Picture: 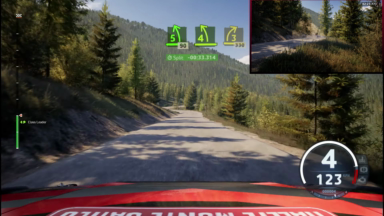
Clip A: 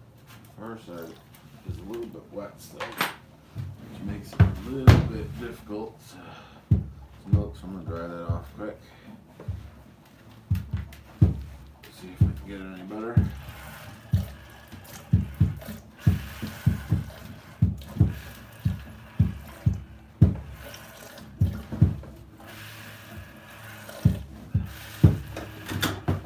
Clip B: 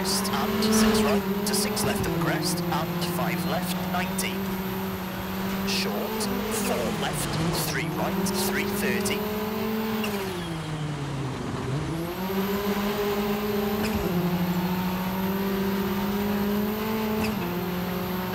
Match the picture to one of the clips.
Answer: B